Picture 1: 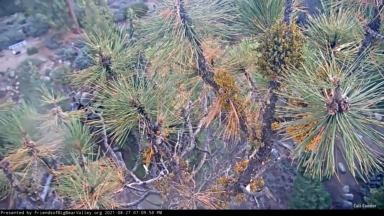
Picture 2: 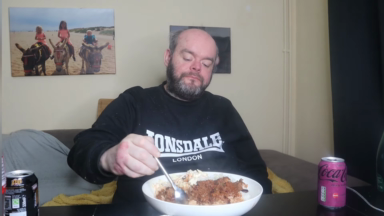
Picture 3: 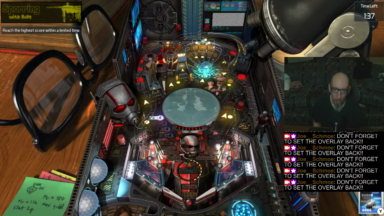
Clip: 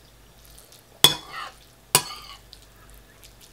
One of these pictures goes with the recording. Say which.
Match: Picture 2